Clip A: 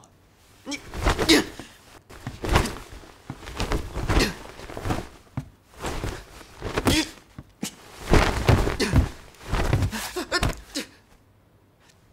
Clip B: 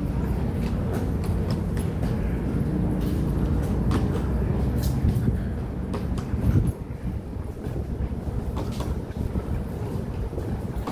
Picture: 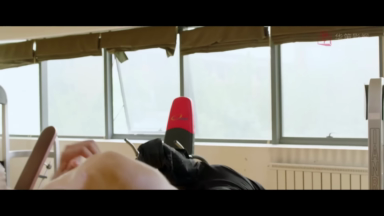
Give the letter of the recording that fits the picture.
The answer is A